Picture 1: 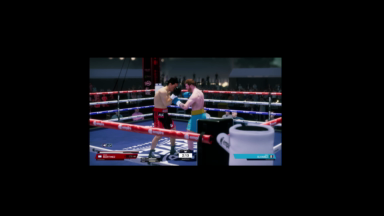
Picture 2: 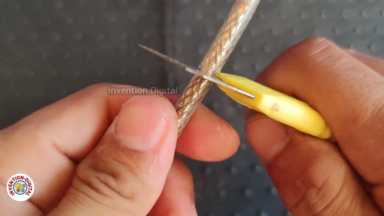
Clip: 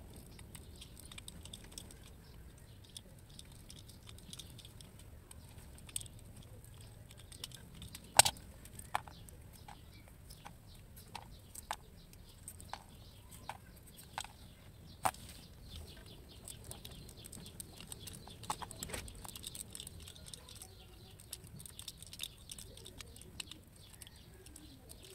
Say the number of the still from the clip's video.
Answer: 2